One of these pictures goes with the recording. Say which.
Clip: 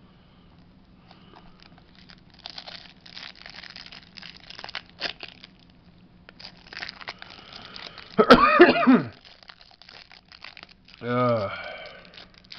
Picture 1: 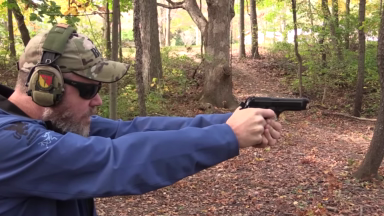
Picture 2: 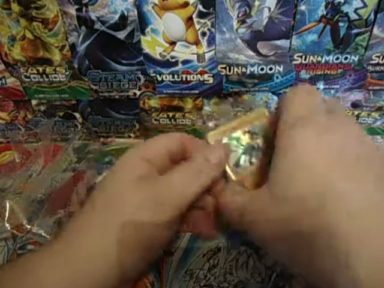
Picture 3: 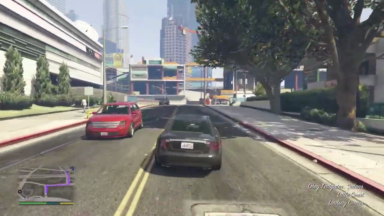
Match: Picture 2